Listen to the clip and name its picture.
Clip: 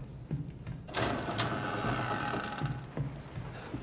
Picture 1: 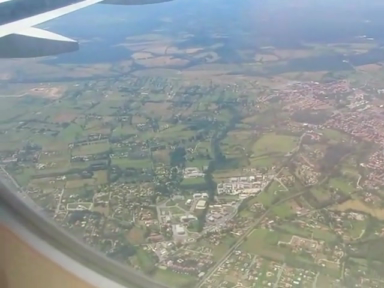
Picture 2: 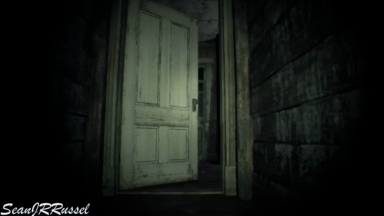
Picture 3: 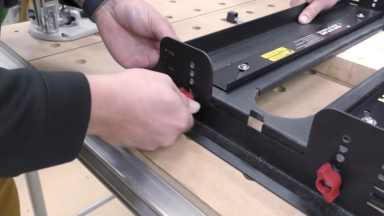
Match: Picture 2